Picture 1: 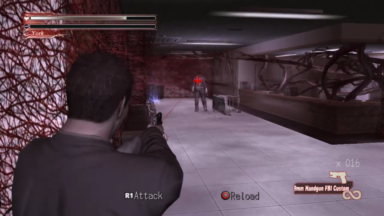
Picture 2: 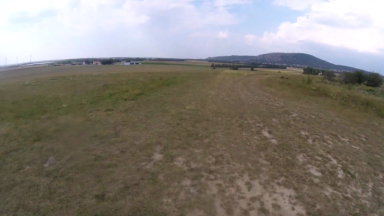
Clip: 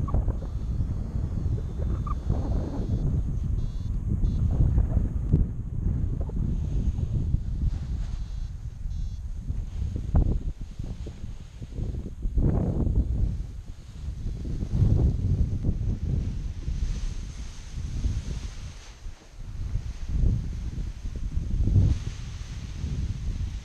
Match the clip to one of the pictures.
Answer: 2